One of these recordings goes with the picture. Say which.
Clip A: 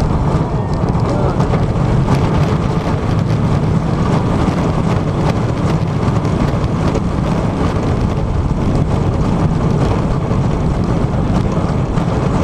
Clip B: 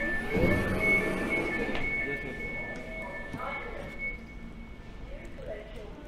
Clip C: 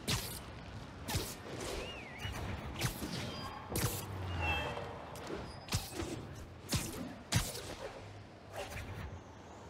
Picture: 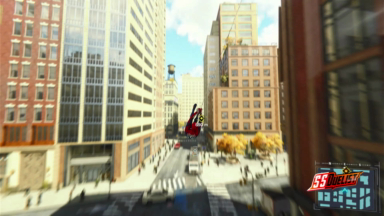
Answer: C